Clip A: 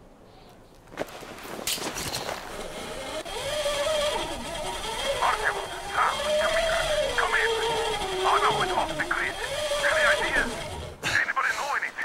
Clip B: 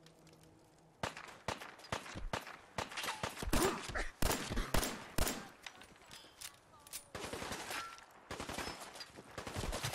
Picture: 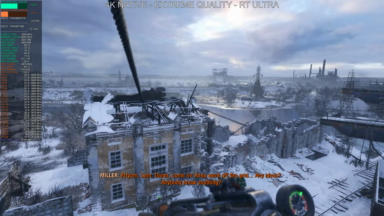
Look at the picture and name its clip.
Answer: A